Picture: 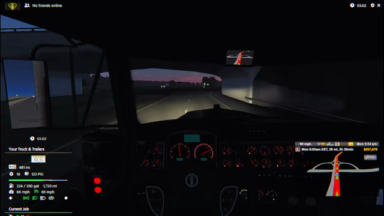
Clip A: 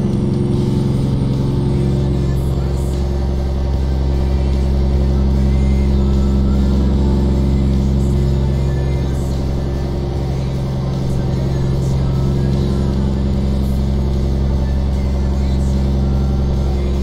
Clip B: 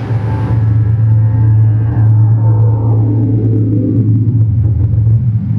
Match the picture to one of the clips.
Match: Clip A